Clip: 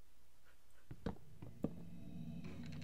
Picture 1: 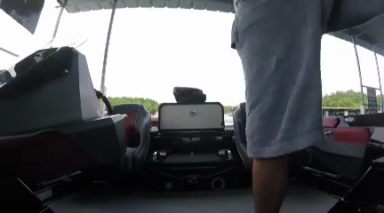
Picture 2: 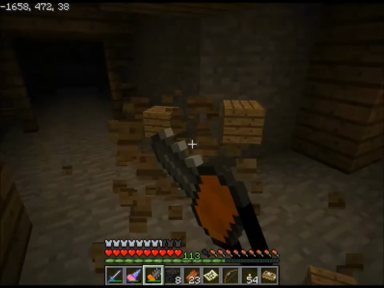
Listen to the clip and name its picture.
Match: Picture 2